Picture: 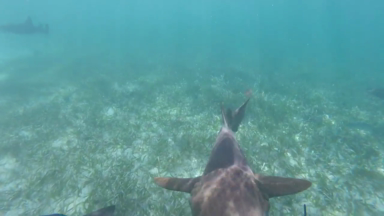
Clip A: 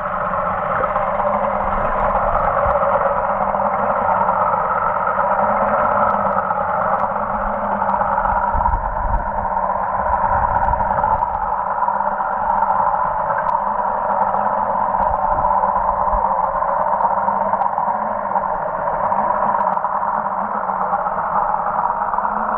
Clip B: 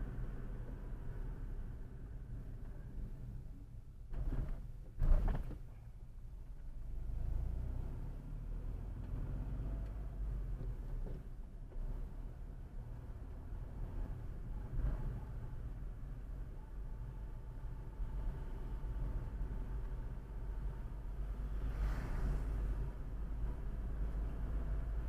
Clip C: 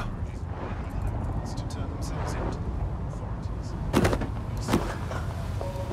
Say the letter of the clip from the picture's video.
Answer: A